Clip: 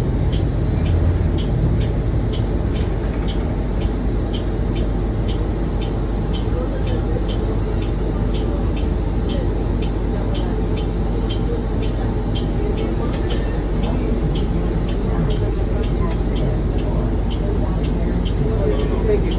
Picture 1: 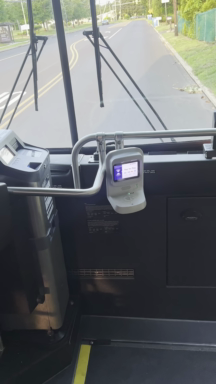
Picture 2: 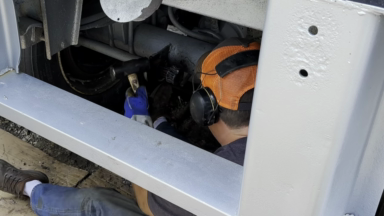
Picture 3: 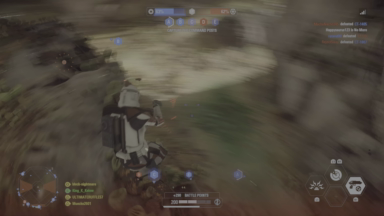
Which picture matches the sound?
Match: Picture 1